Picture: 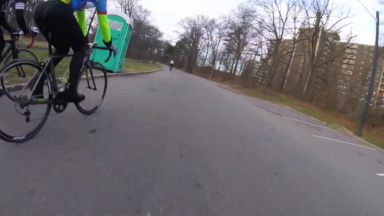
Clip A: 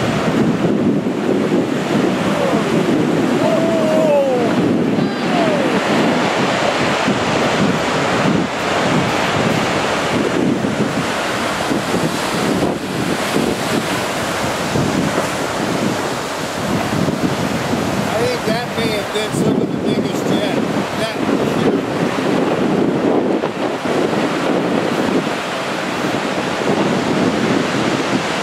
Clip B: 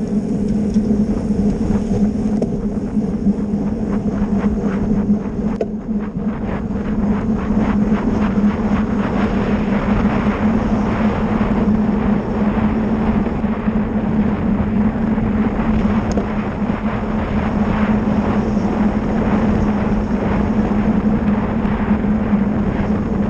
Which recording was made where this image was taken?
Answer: B